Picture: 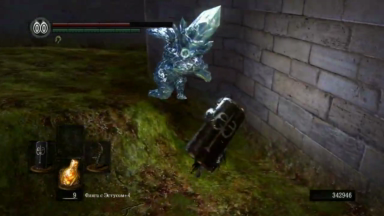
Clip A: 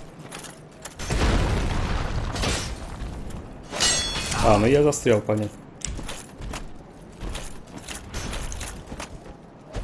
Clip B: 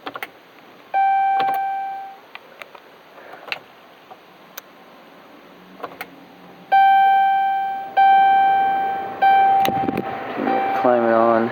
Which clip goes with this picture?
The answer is A